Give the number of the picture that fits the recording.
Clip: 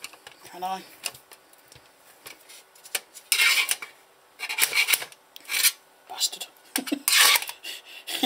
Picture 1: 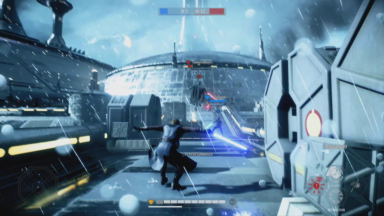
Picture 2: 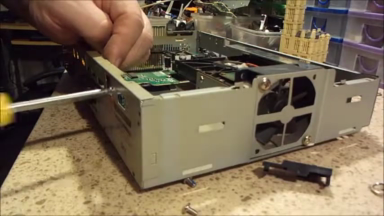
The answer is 2